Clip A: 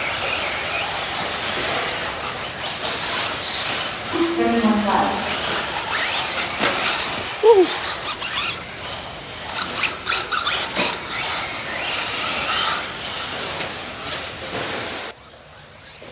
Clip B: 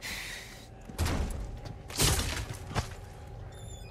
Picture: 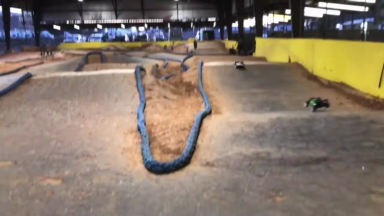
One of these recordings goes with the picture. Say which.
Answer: A